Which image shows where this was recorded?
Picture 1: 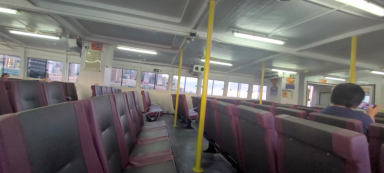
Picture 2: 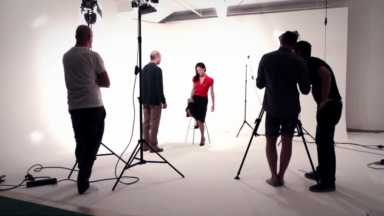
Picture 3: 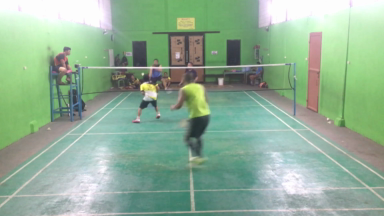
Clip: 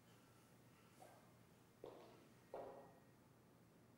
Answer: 2